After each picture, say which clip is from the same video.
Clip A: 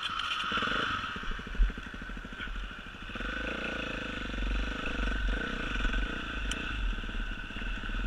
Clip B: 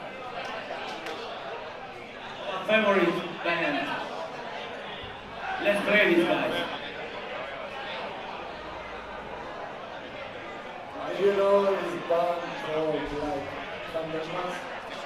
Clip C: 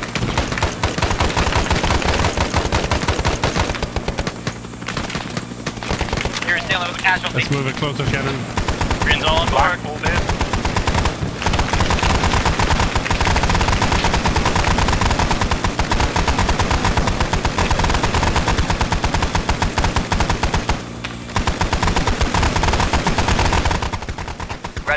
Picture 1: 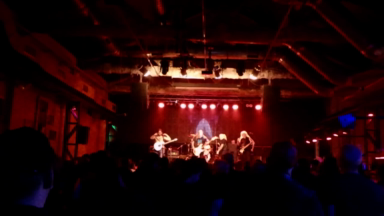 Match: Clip B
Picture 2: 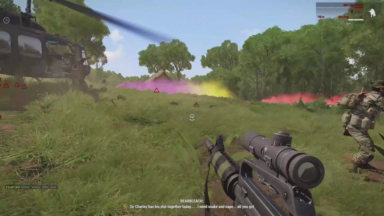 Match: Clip C